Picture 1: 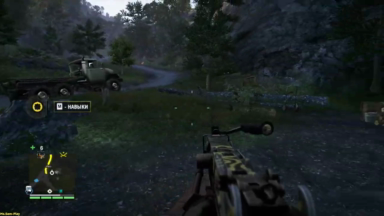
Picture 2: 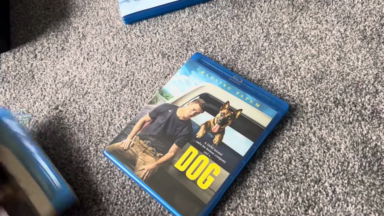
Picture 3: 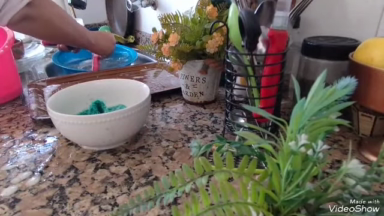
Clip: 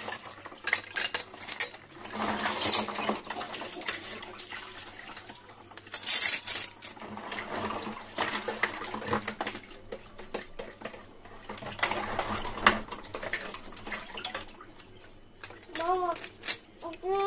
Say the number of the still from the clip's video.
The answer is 3